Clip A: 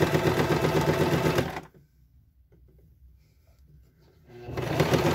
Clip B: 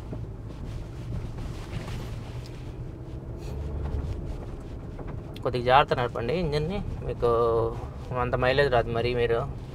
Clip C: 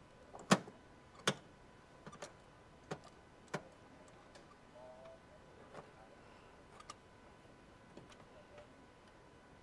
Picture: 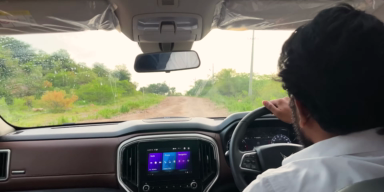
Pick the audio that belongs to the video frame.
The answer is B